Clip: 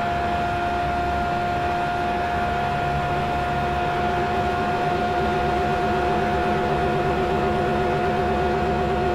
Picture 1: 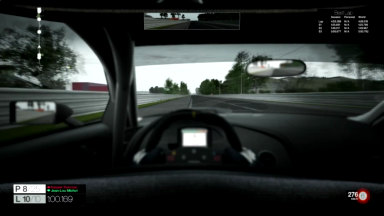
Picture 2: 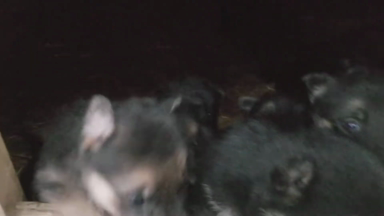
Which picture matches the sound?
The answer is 1